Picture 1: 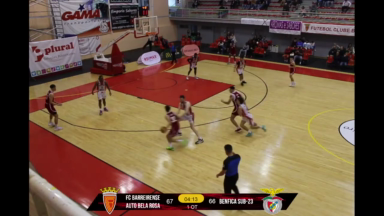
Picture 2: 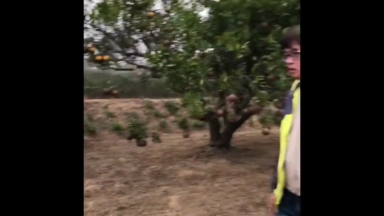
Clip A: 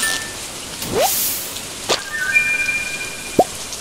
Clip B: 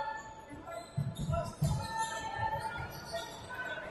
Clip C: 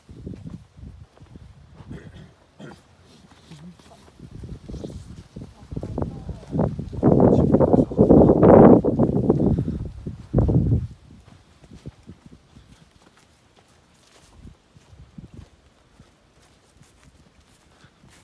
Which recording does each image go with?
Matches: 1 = B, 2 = C